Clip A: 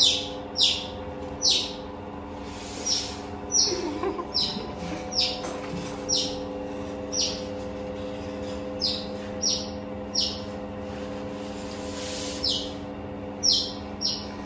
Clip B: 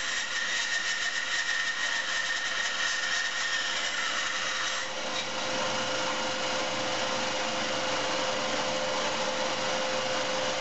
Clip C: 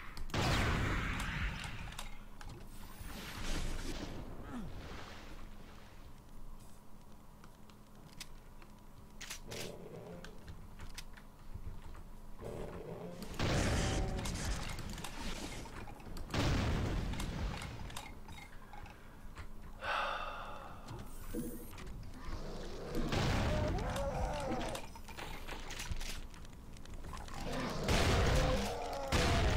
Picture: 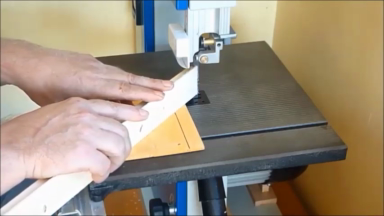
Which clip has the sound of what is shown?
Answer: B